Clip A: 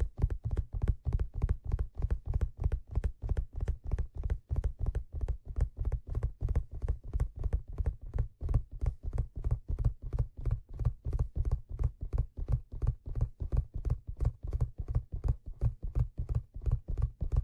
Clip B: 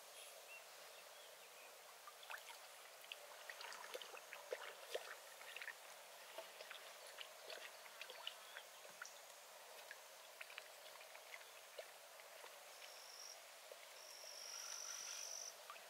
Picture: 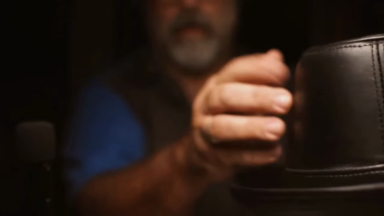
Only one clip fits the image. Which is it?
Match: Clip A